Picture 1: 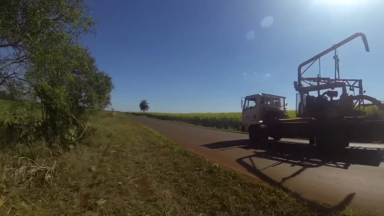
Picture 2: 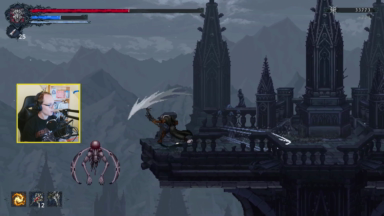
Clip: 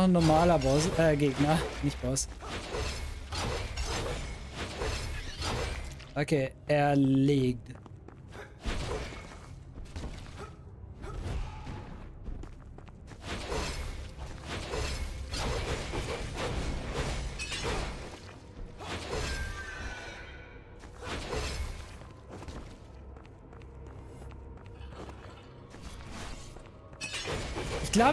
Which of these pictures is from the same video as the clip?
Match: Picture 2